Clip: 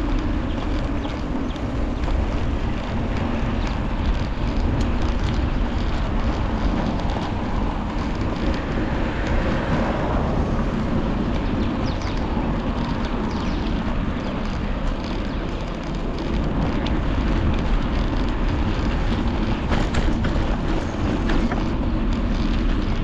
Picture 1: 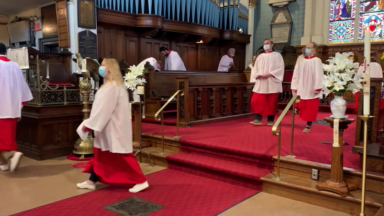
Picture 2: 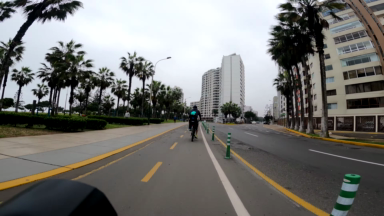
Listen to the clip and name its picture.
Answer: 2